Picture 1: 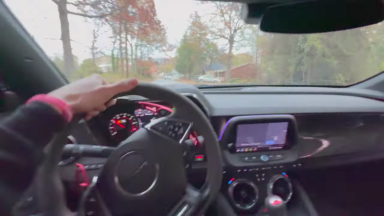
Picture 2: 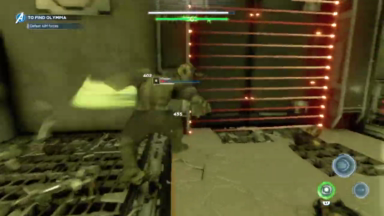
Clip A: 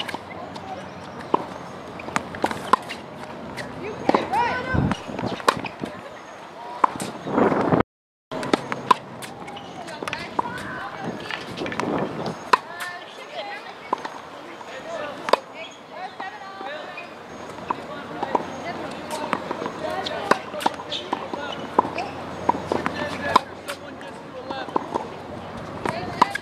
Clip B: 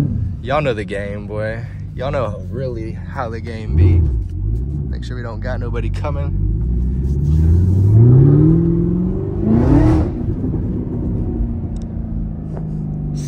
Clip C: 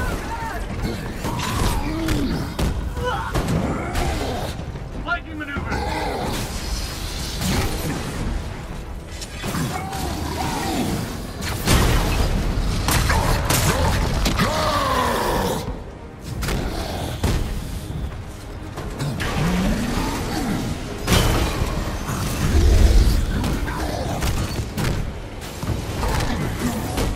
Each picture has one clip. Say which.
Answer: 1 B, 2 C